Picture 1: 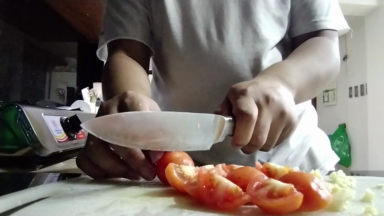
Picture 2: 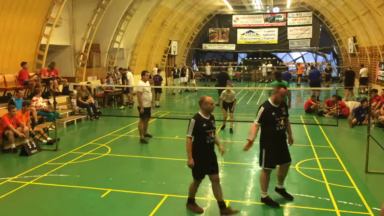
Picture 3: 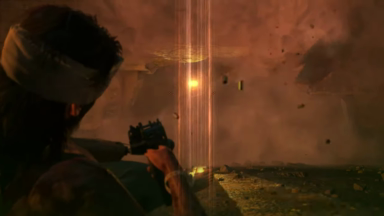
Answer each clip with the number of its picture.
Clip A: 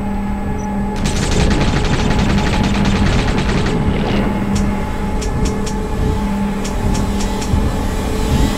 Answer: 3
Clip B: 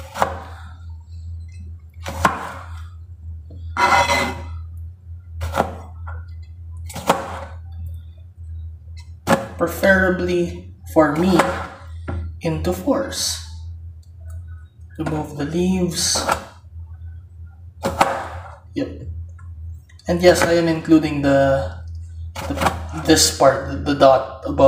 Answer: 1